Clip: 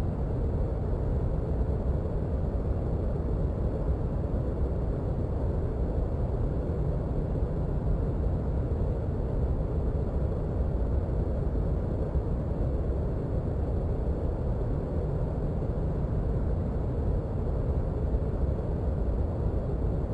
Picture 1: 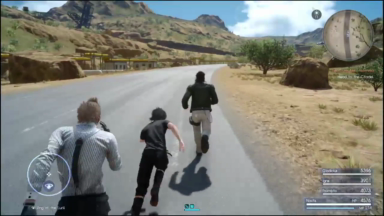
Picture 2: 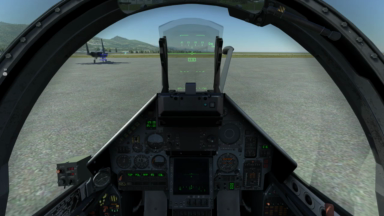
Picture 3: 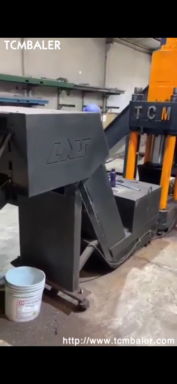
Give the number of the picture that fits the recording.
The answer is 2